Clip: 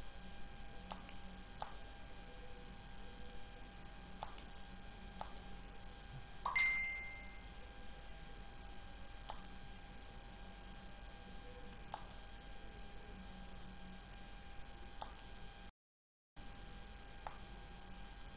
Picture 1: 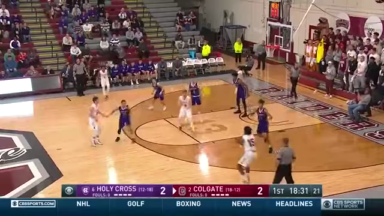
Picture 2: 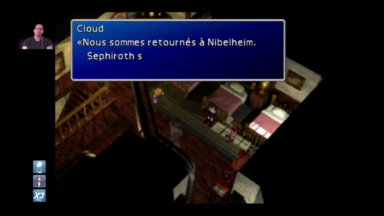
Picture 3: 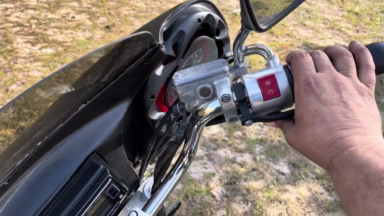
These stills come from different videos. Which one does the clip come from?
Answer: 2